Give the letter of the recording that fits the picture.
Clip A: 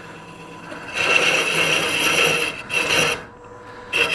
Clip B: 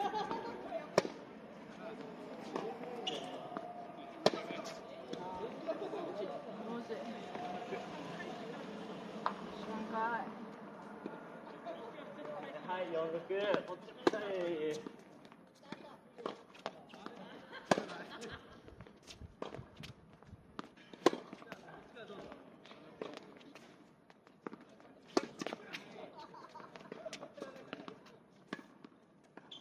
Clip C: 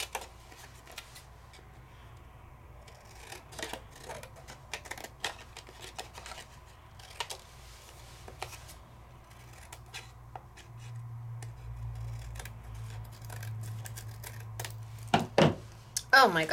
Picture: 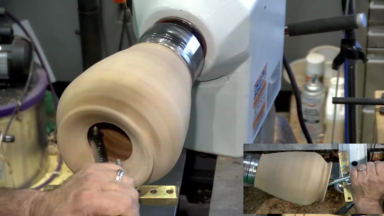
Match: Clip A